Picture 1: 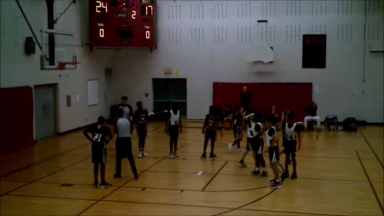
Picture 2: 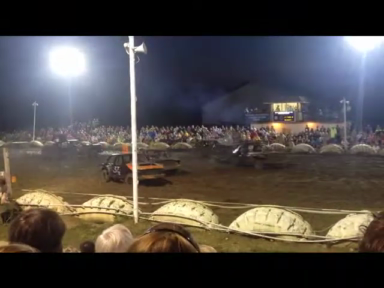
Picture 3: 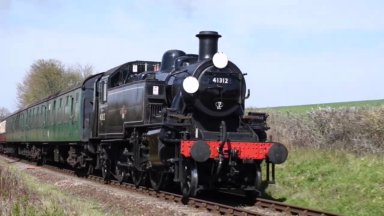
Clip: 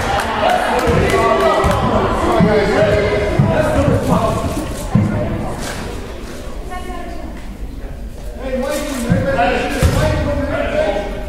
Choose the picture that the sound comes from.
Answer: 1